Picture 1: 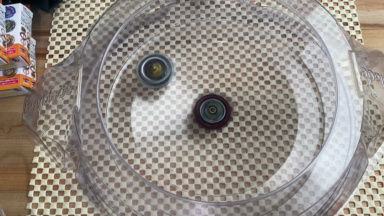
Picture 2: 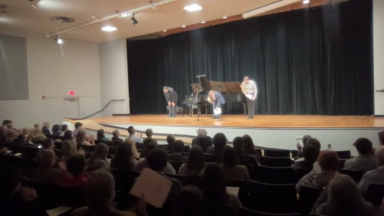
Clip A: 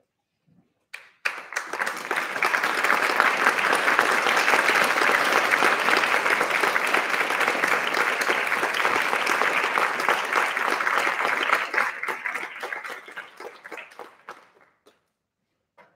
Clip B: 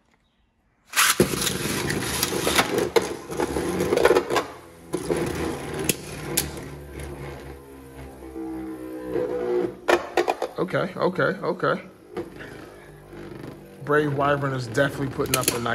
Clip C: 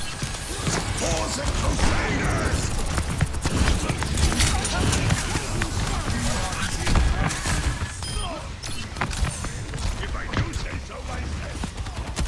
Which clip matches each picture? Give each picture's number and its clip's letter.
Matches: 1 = B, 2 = A